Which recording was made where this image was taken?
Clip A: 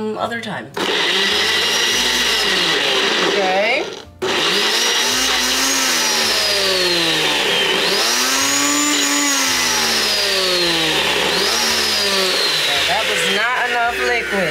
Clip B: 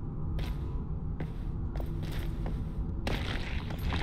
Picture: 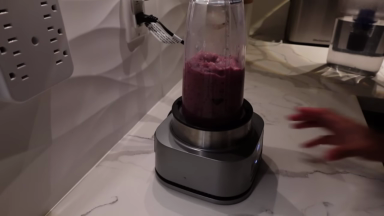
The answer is A